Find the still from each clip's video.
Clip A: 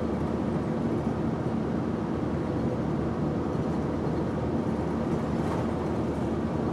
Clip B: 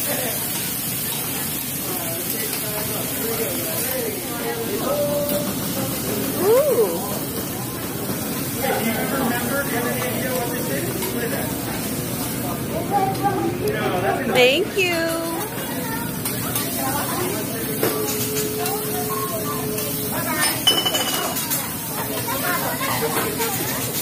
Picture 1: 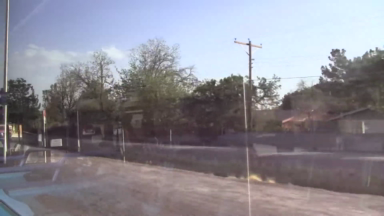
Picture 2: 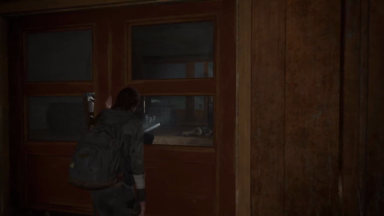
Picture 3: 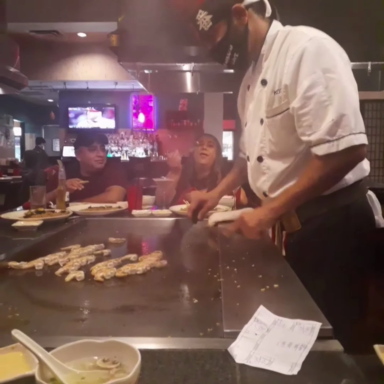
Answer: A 1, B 3